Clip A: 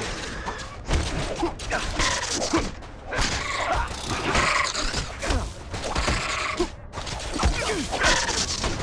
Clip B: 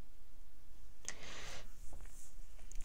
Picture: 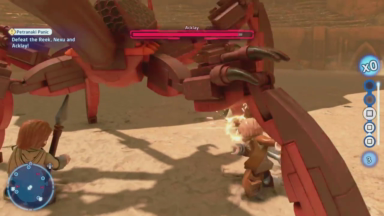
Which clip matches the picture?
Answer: A